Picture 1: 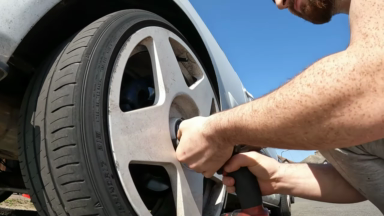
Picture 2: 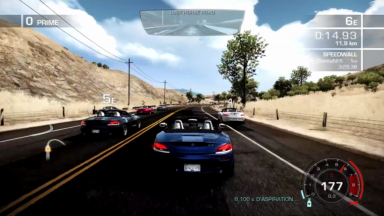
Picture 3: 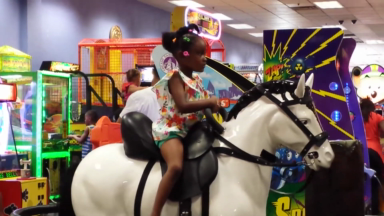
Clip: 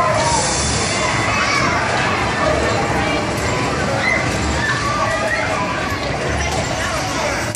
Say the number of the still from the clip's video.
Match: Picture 3